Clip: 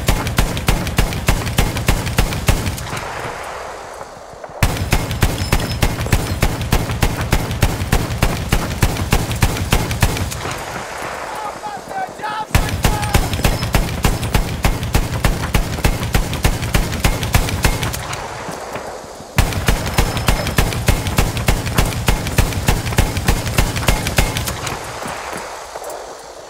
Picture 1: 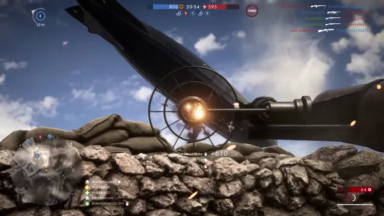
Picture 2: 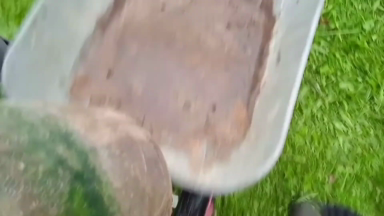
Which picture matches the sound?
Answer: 1